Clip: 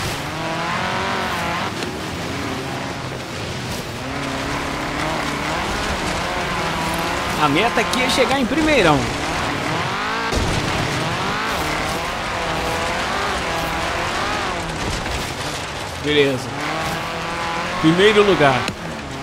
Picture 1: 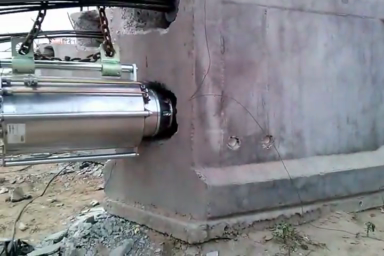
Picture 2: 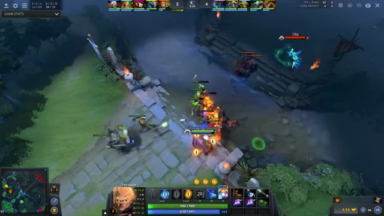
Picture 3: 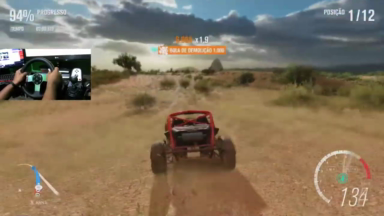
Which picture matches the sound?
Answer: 3